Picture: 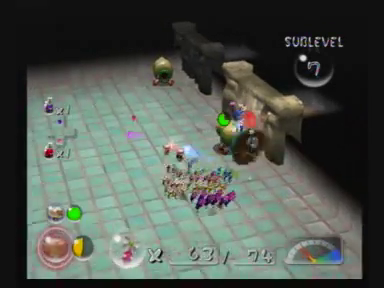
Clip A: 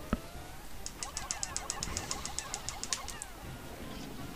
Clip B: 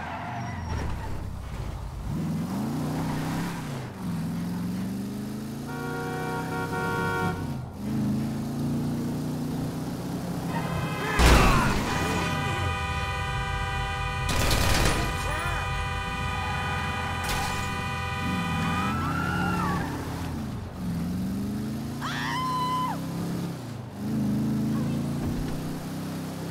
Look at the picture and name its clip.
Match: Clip A